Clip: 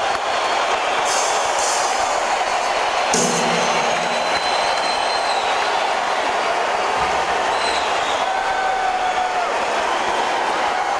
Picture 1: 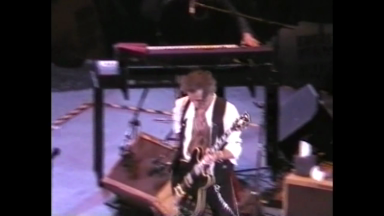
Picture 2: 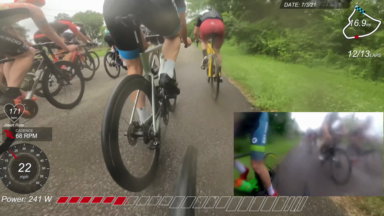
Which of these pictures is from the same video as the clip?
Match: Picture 1